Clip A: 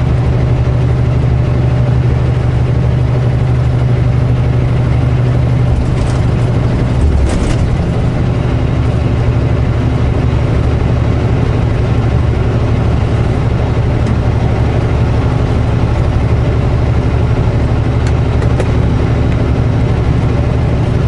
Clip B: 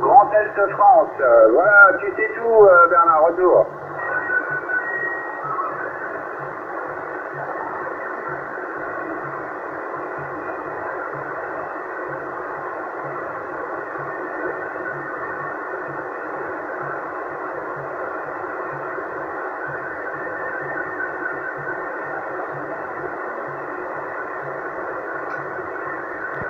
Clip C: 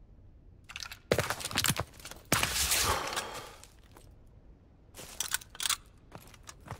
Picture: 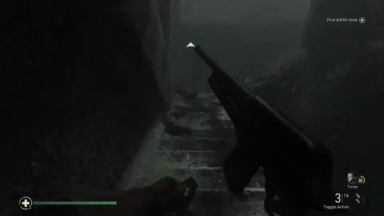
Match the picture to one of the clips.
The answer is C